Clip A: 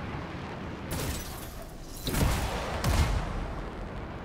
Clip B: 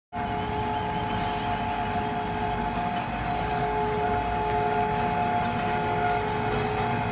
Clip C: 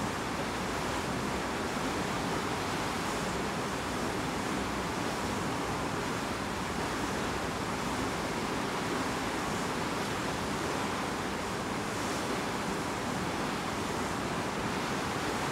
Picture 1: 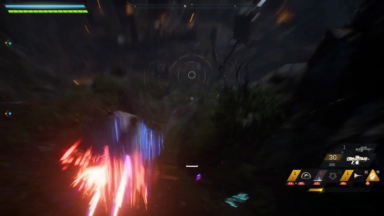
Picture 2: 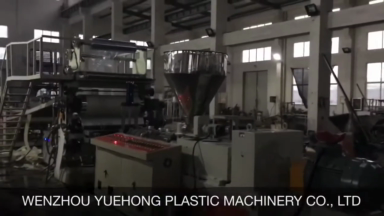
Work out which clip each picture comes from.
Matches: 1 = A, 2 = B